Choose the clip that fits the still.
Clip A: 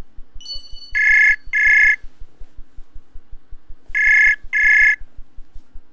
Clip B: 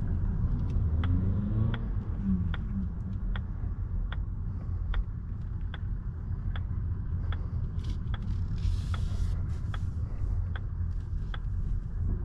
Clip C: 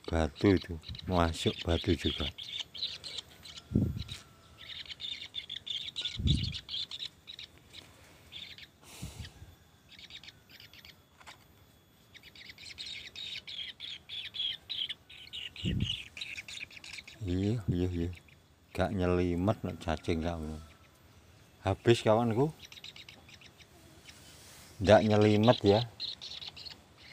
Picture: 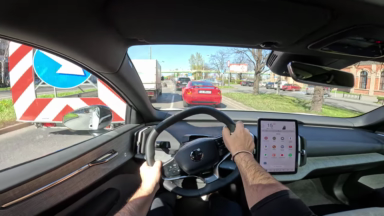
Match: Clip B